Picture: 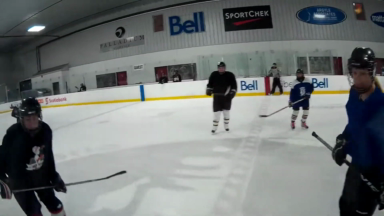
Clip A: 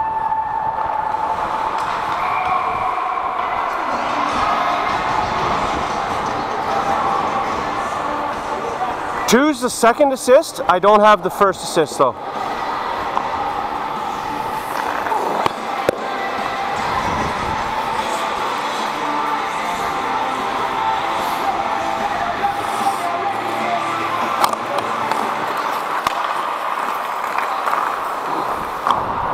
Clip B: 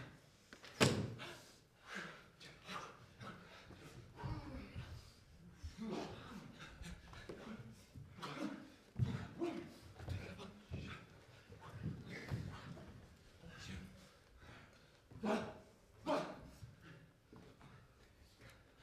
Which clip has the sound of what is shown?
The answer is A